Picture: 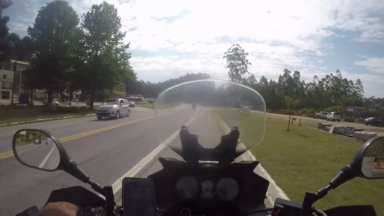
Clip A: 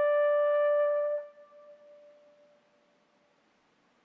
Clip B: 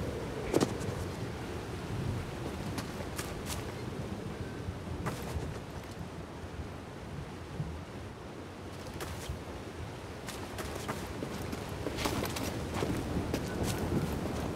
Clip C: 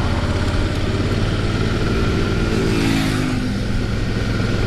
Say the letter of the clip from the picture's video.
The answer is C